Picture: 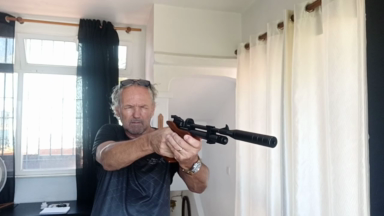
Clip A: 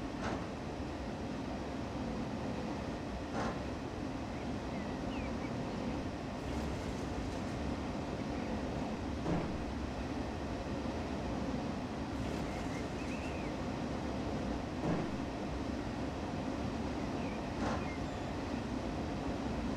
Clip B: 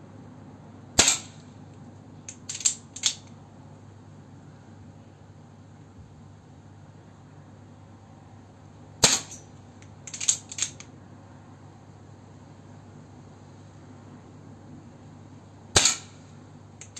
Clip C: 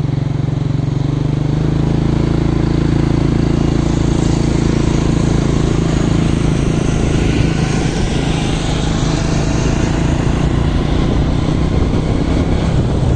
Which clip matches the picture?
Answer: B